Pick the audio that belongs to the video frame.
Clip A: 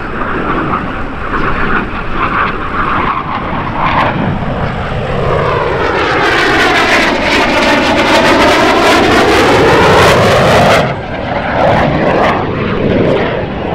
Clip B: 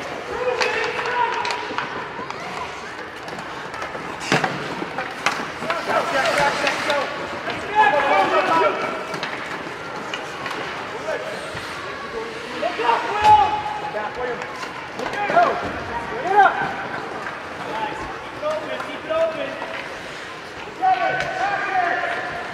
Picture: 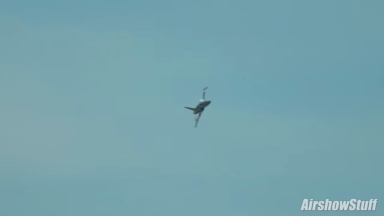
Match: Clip A